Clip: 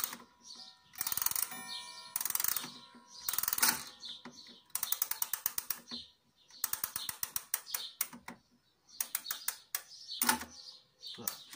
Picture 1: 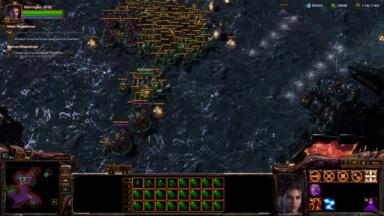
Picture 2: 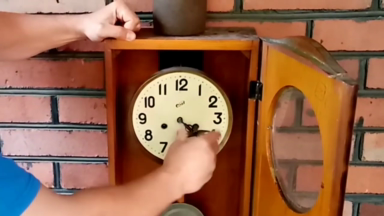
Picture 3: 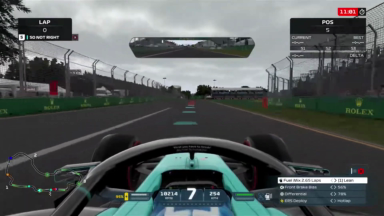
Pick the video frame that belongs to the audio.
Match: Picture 2